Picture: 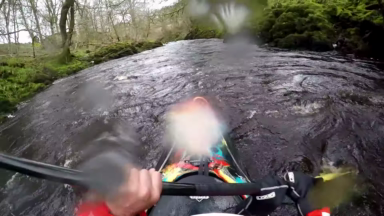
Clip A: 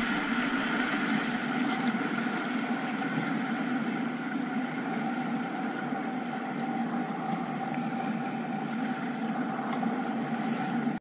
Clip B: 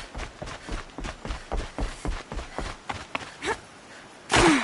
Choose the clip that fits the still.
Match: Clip A